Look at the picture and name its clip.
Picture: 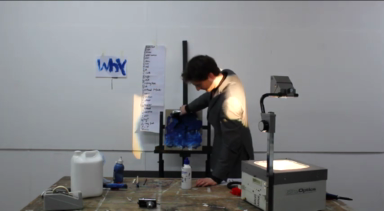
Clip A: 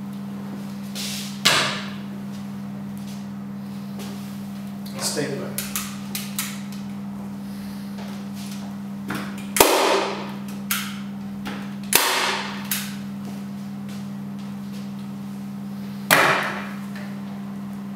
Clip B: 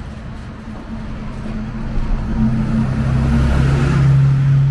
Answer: A